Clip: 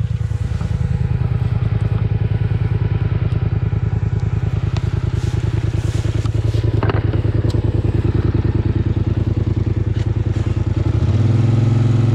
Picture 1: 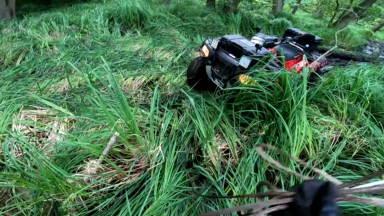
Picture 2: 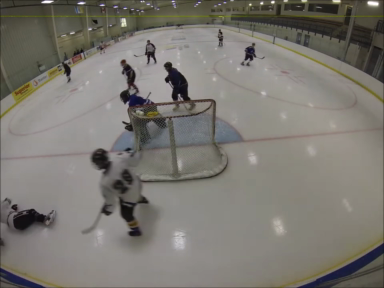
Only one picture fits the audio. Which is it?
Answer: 1